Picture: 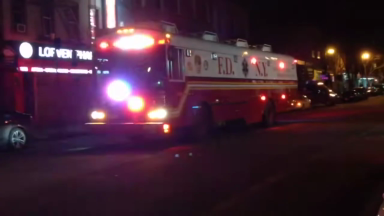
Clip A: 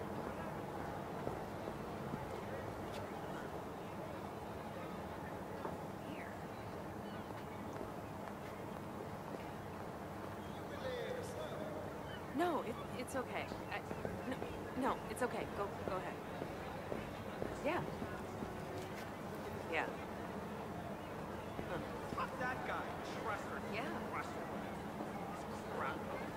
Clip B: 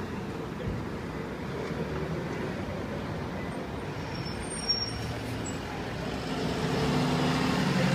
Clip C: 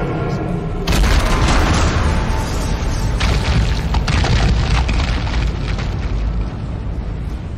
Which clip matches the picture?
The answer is B